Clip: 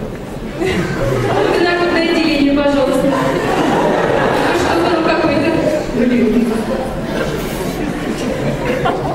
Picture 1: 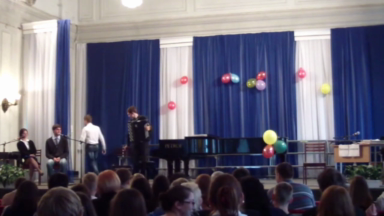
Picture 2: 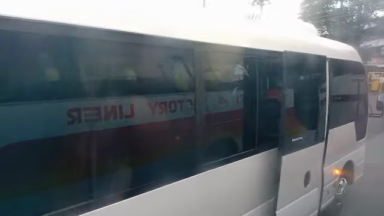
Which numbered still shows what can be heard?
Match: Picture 1